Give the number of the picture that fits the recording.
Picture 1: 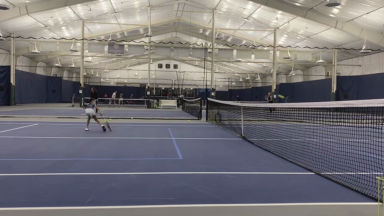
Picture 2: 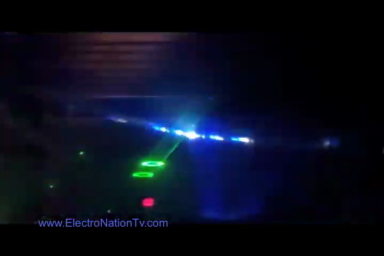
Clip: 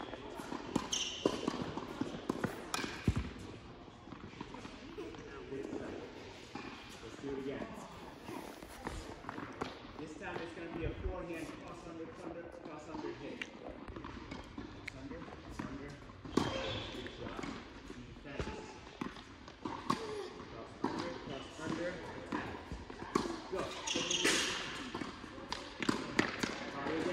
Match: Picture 1